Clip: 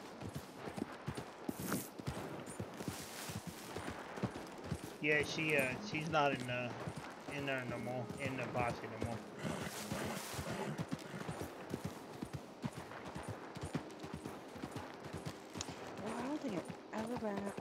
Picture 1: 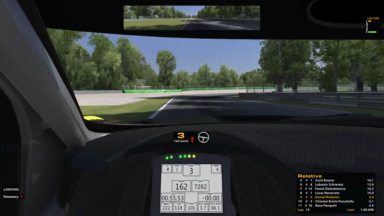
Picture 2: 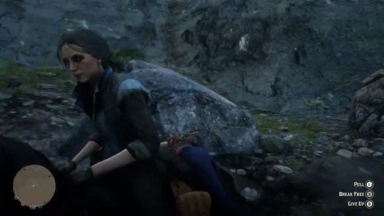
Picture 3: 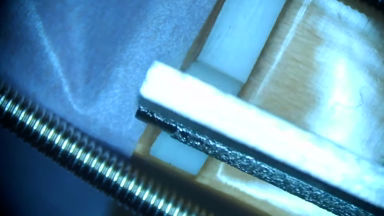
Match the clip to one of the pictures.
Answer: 2